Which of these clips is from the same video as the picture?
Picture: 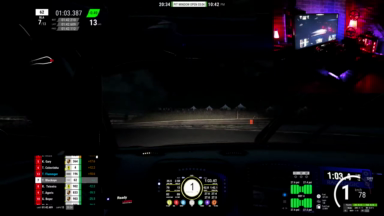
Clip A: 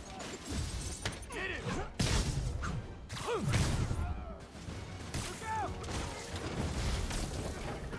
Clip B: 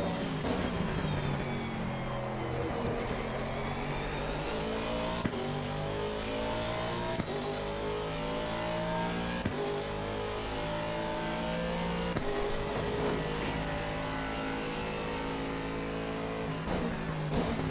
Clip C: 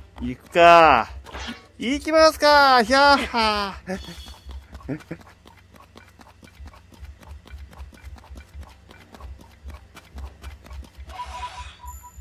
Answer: B